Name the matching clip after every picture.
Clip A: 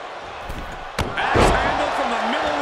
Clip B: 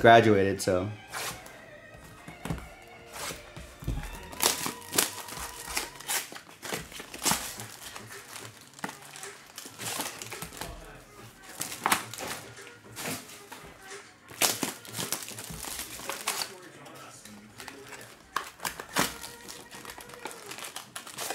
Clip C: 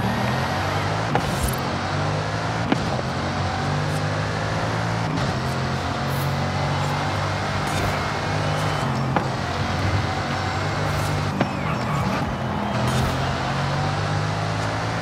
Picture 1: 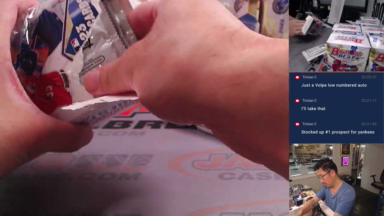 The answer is B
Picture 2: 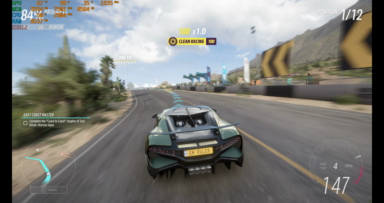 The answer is C